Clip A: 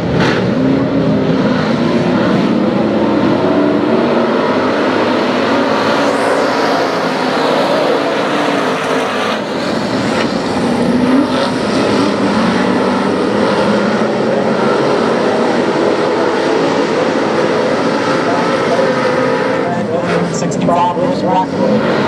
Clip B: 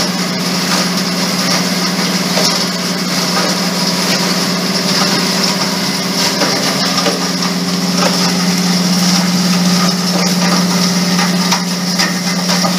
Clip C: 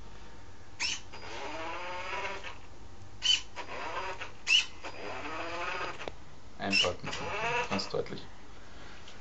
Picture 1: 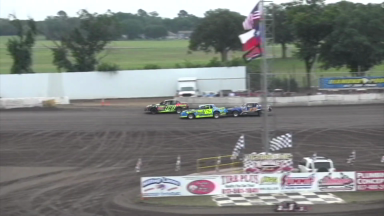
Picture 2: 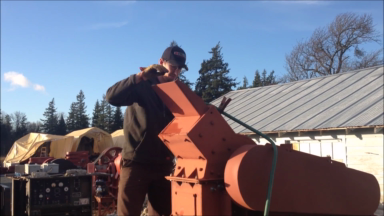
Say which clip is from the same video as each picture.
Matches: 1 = A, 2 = B